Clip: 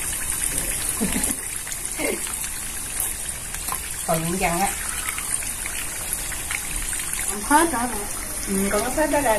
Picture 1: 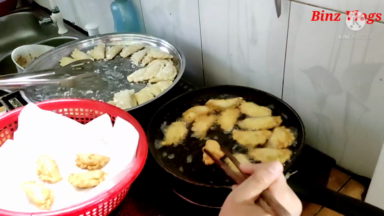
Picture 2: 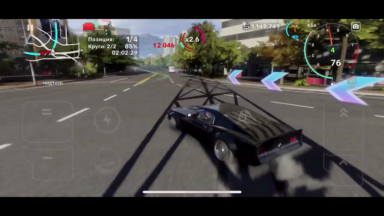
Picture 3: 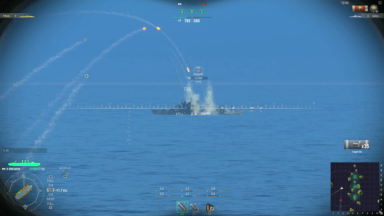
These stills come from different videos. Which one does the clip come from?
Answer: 1